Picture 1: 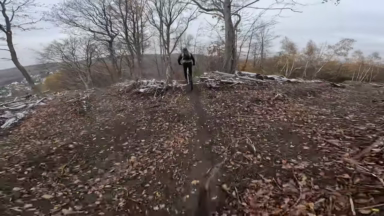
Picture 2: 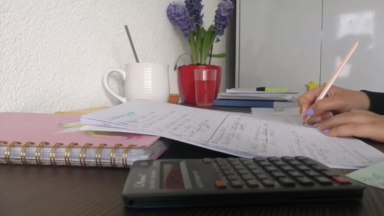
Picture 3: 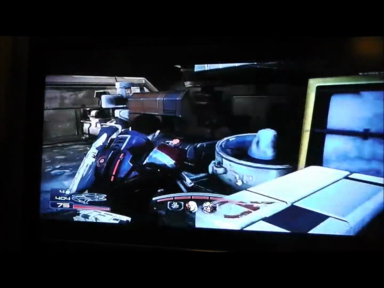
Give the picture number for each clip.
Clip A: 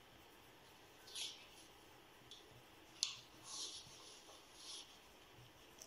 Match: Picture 2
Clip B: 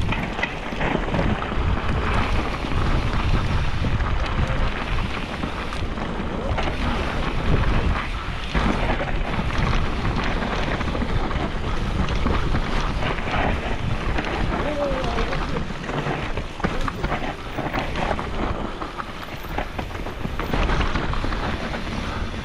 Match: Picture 1